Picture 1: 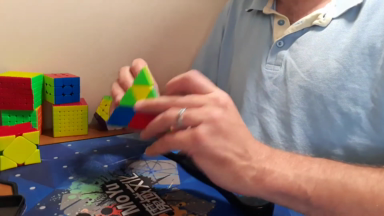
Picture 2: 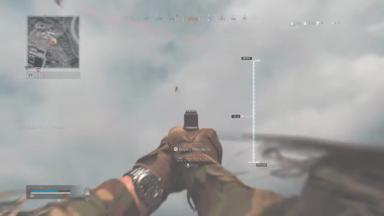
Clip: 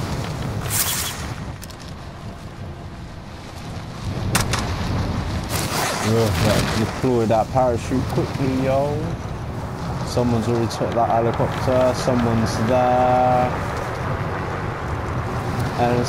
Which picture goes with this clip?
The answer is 2